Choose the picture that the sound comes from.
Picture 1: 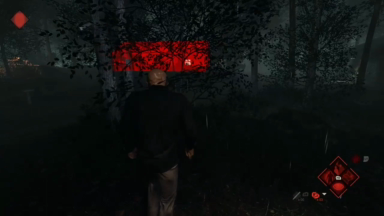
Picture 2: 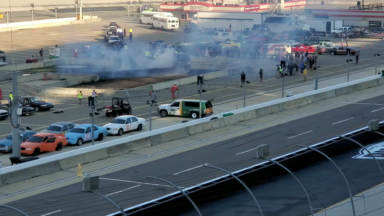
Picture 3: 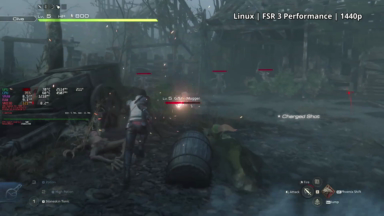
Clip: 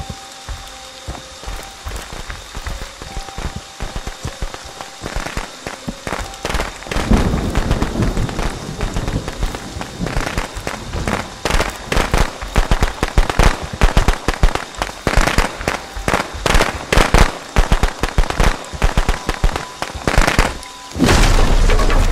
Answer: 1